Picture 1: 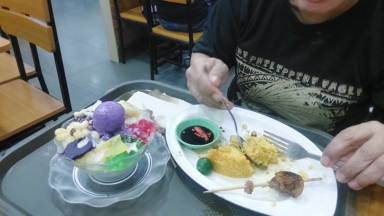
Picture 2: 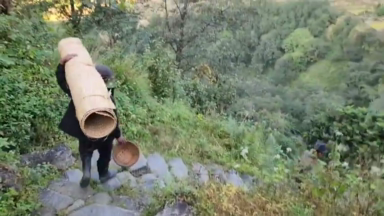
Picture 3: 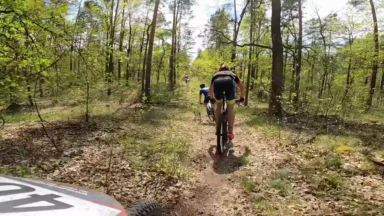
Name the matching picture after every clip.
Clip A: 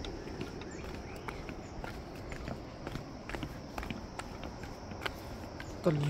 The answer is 2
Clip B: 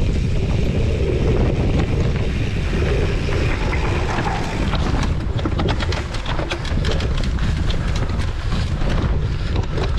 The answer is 3